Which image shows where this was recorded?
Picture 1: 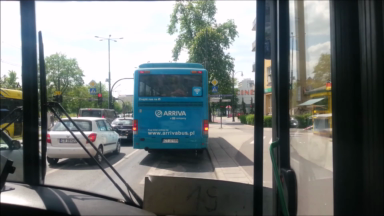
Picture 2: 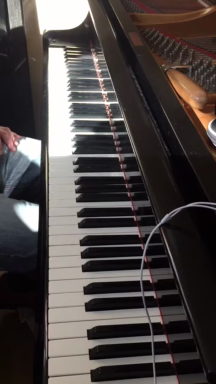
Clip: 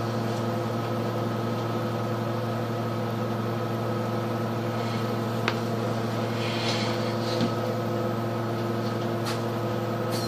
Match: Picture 1